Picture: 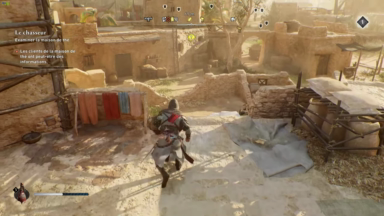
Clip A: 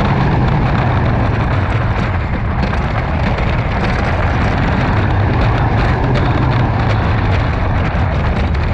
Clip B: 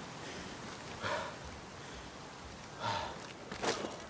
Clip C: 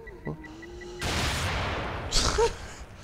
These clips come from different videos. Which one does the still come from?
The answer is B